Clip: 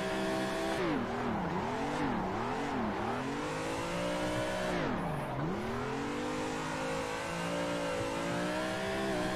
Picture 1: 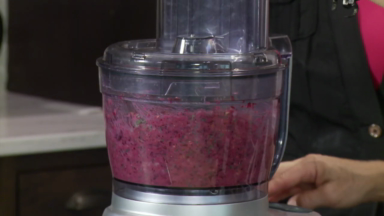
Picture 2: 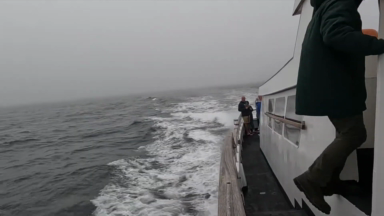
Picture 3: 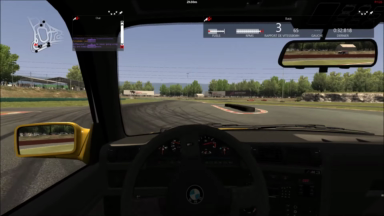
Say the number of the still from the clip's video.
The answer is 3